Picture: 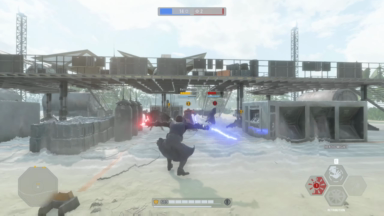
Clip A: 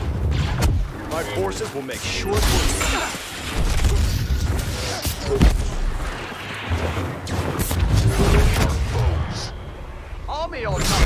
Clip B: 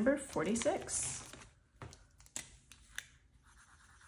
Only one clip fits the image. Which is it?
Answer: A